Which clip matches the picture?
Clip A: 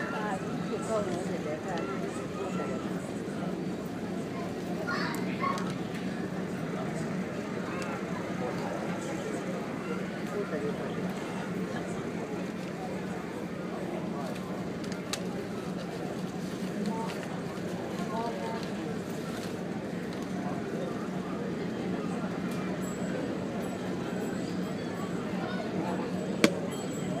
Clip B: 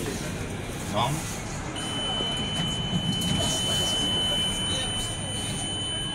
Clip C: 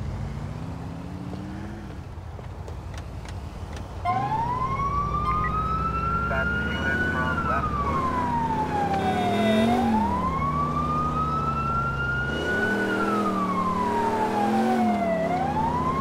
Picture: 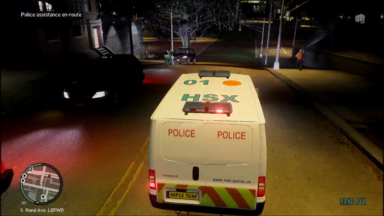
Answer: C